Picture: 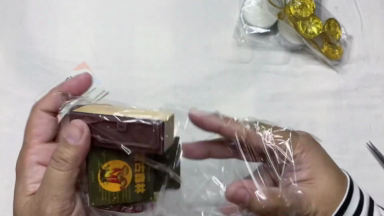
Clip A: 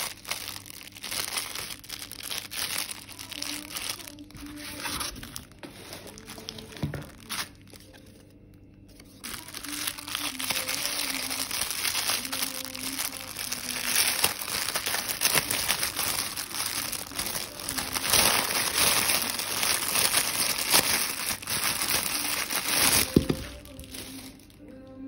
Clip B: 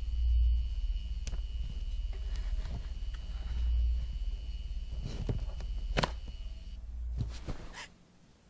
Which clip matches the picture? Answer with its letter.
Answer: A